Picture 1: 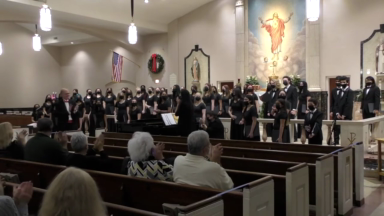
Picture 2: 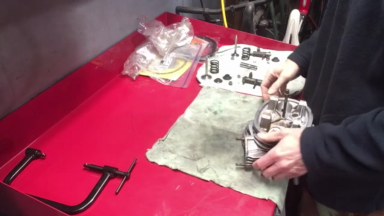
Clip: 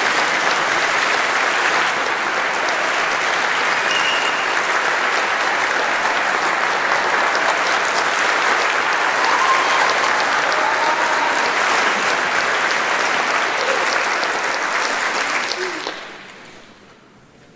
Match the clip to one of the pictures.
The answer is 1